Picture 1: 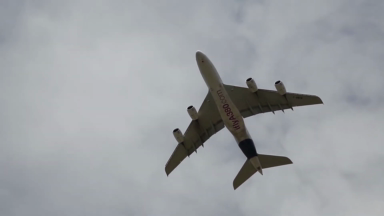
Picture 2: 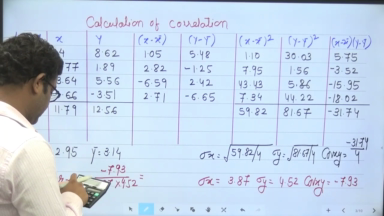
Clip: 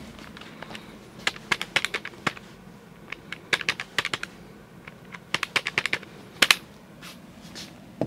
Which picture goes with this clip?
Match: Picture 2